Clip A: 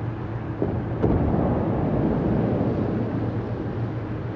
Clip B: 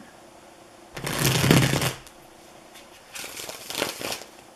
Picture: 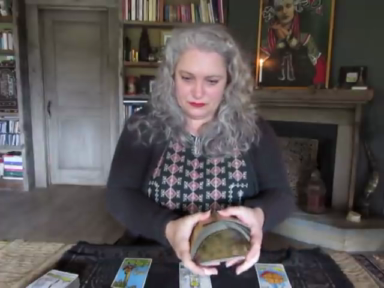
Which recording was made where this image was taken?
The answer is B